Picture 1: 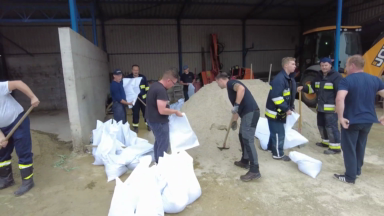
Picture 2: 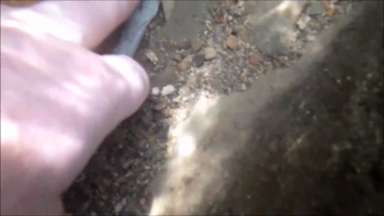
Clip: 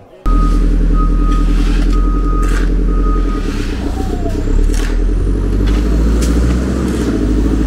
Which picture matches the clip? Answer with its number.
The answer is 1